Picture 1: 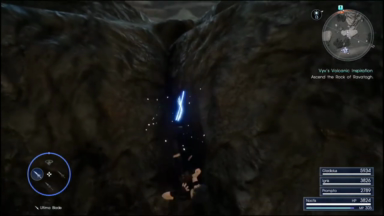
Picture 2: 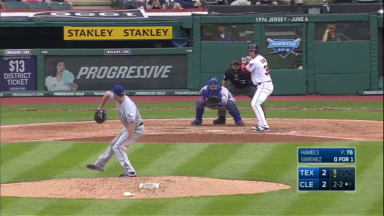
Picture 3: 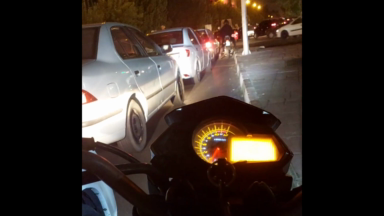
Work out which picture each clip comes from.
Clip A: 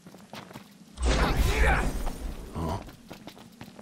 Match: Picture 1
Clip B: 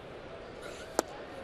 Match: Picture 2